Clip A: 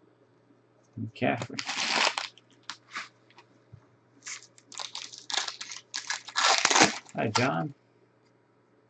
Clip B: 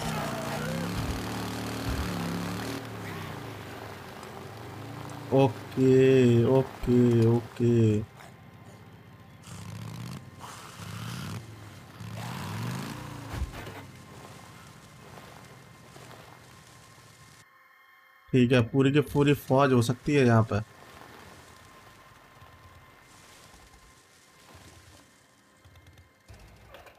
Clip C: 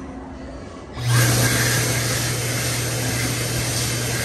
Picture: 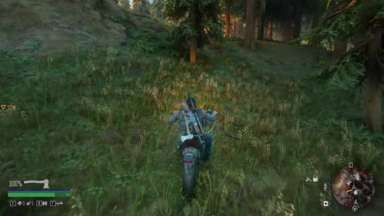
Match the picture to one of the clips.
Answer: B